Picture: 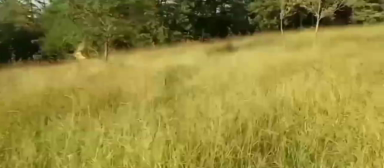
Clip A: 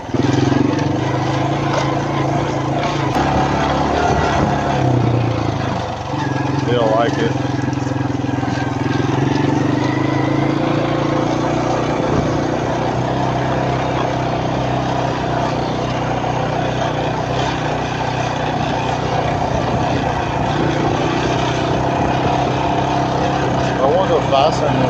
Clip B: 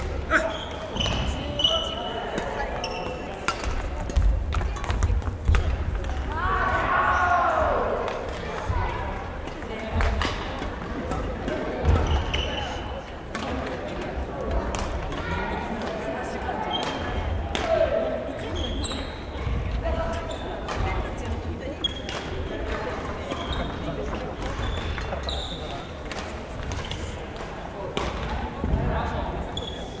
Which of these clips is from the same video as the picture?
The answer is A